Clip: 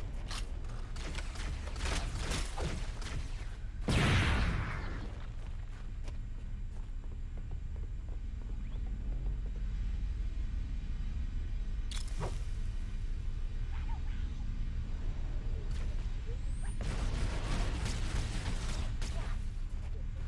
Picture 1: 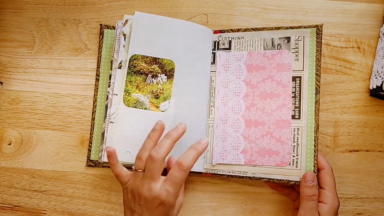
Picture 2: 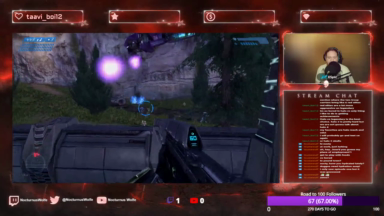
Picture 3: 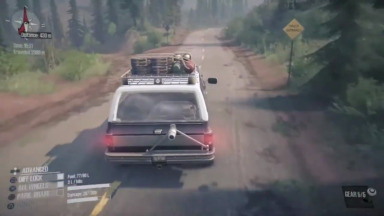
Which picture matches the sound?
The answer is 2